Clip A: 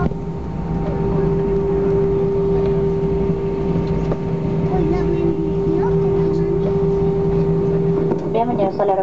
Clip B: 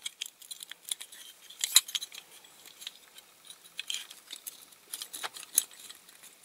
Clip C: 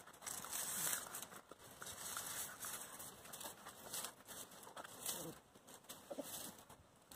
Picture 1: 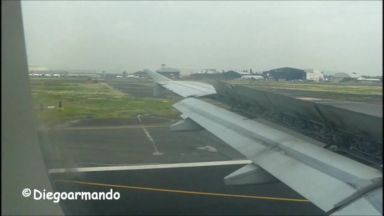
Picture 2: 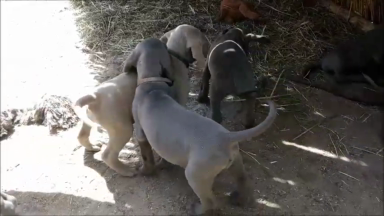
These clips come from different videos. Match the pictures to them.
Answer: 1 A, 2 C